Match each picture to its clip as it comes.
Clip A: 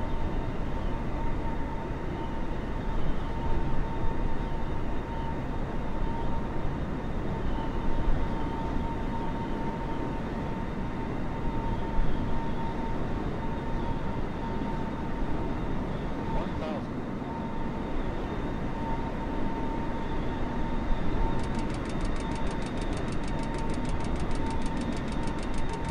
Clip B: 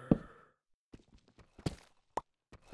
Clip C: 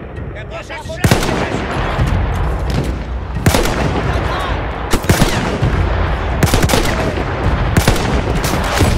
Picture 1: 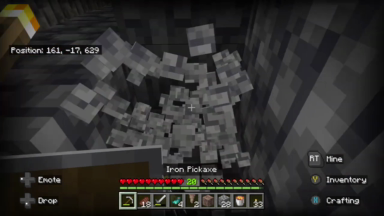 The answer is B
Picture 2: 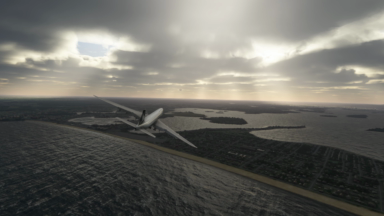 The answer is A